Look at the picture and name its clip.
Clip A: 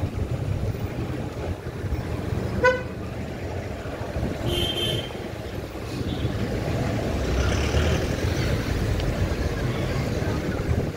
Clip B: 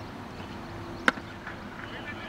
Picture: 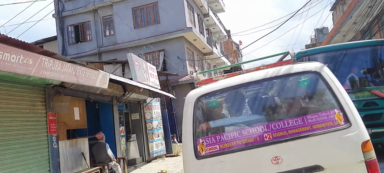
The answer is A